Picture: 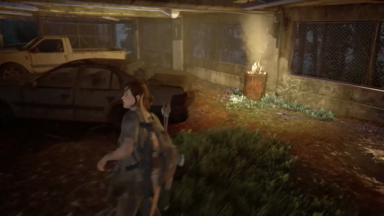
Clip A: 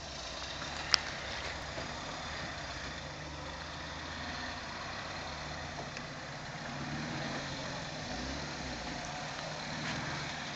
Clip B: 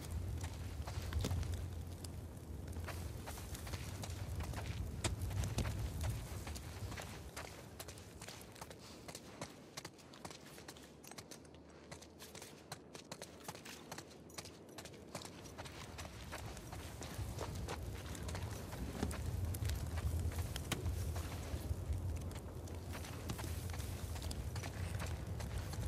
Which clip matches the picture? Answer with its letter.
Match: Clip B